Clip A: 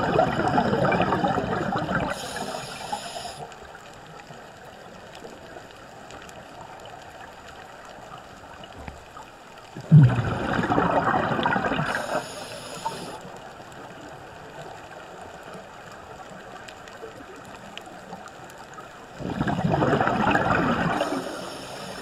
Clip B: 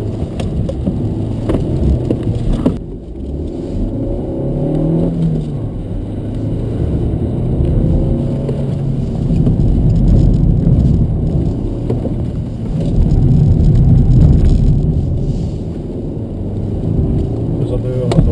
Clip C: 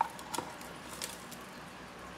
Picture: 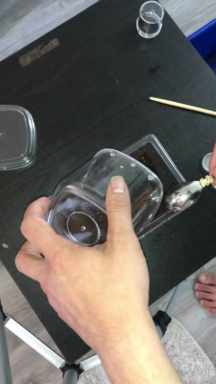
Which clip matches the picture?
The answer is C